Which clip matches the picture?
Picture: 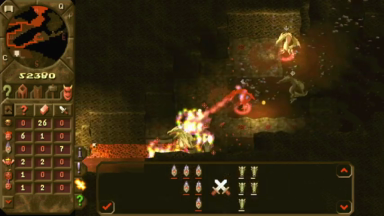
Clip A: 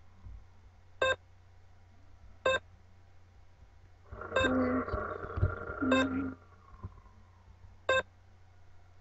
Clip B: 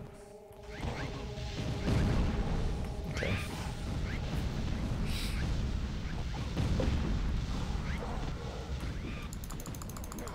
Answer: B